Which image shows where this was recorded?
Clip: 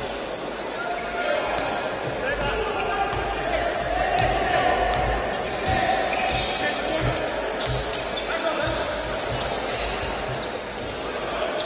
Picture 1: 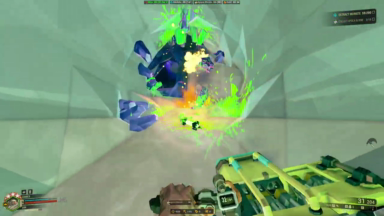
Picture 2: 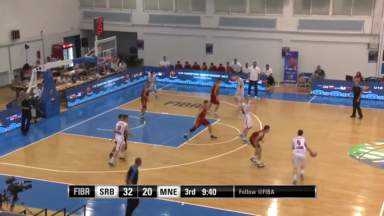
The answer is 2